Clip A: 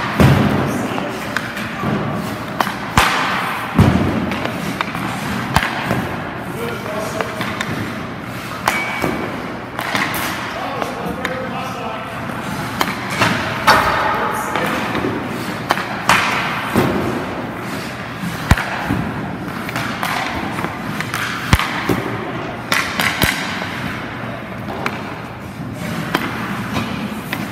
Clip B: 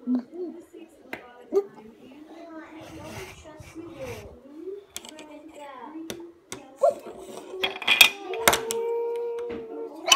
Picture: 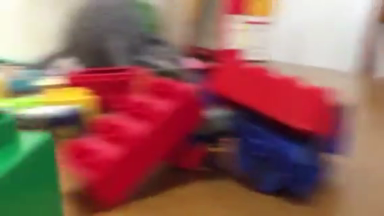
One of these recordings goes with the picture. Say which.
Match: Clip B